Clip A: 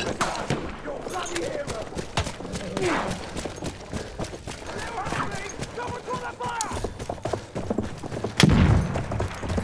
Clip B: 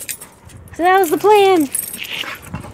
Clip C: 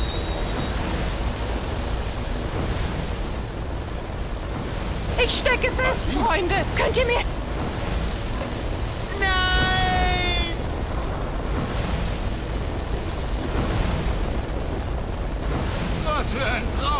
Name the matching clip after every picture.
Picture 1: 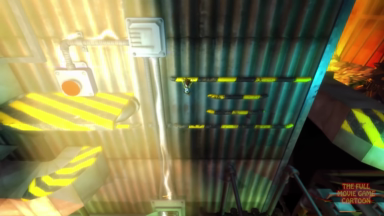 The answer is C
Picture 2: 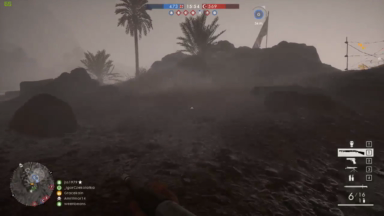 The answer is A